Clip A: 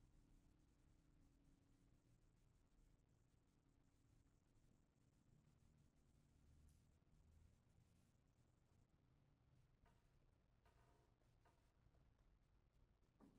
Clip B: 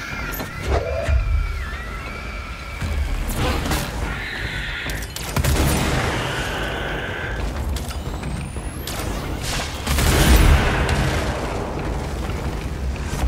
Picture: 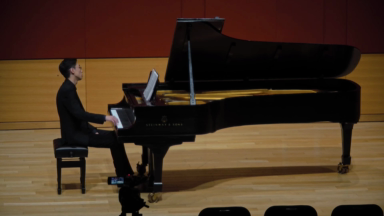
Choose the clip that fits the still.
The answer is A